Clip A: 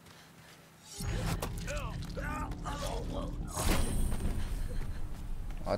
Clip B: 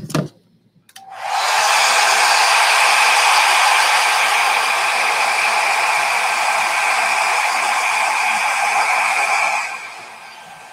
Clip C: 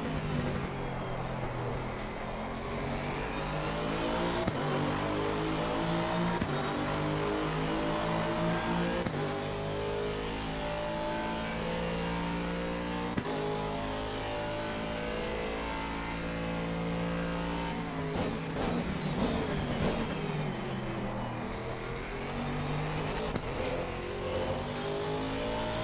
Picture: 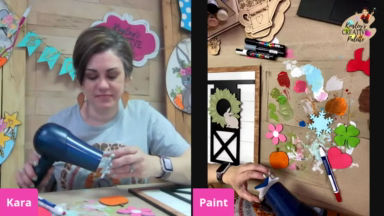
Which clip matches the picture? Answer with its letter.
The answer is B